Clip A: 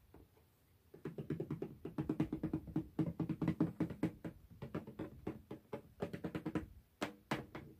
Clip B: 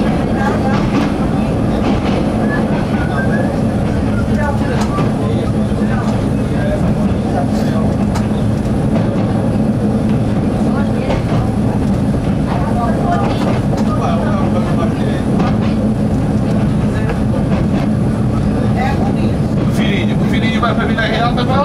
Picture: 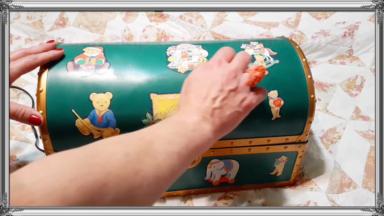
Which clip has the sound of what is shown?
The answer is A